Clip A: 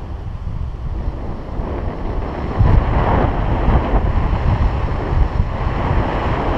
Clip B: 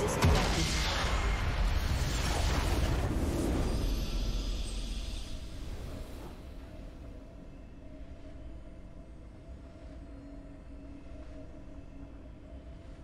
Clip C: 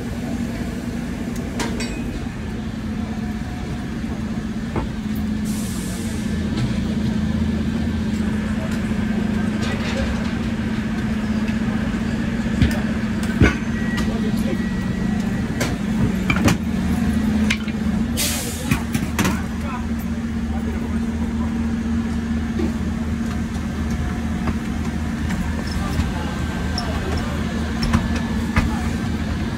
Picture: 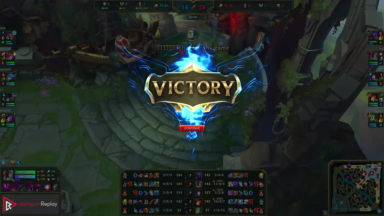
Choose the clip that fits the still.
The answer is B